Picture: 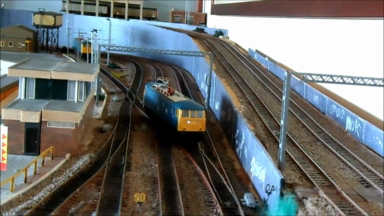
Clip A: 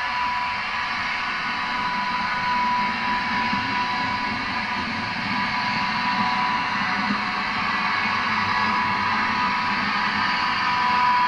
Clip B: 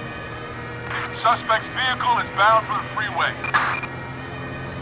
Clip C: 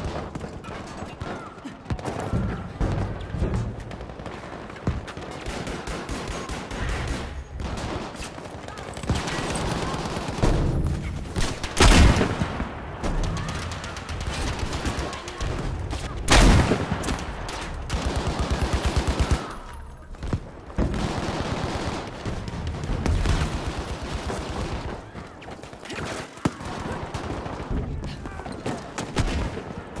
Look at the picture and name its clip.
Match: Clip A